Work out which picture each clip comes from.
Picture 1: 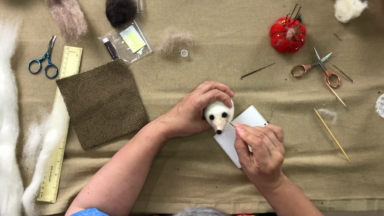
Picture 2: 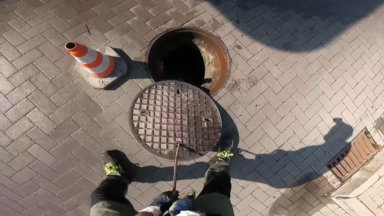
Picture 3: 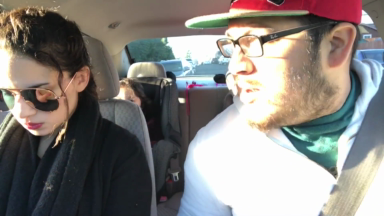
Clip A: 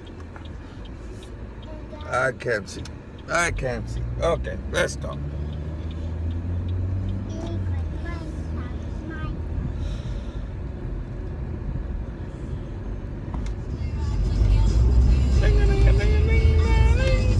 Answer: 3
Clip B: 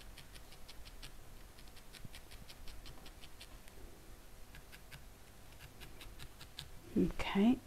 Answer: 1